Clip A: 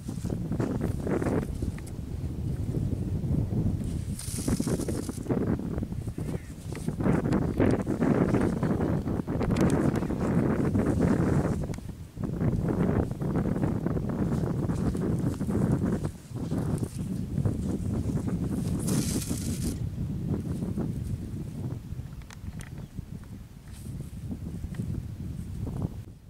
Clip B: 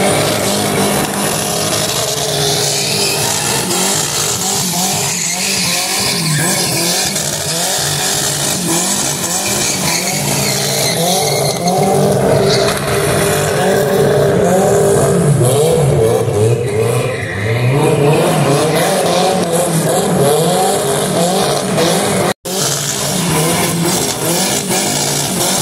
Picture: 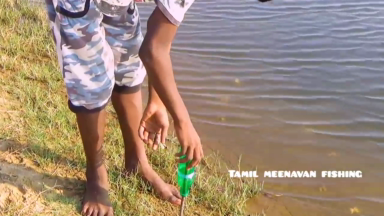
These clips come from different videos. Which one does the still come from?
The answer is A